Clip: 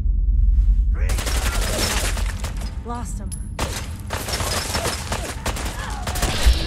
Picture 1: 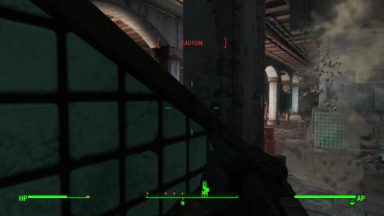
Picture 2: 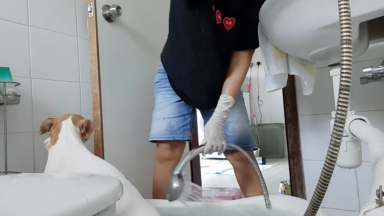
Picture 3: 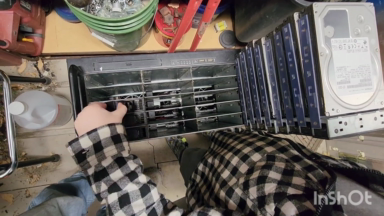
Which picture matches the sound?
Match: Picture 1